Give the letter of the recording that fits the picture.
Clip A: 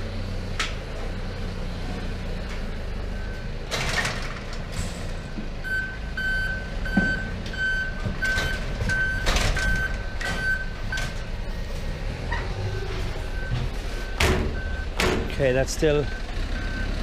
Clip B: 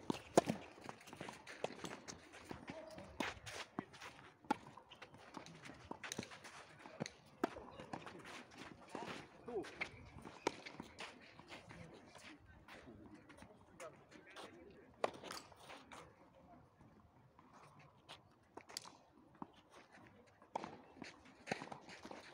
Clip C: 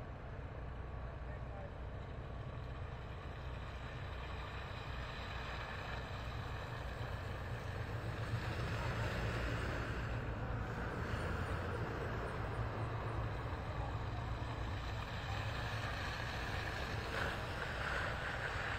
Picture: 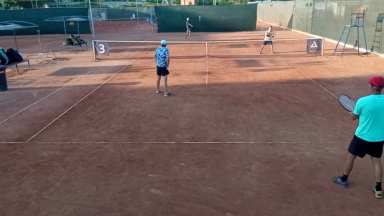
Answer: B